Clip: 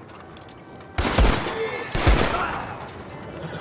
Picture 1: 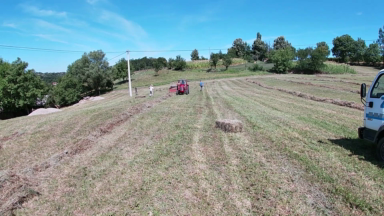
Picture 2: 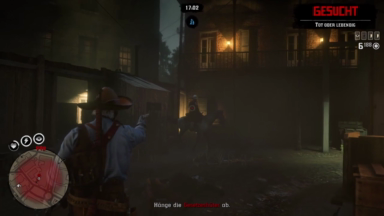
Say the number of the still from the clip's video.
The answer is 2